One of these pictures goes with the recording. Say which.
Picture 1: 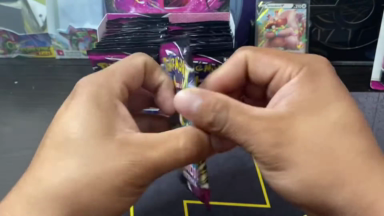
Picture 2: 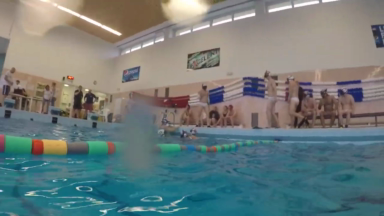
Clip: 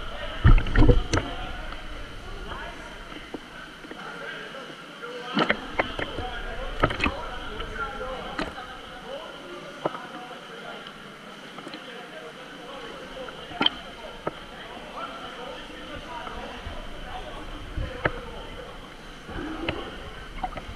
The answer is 2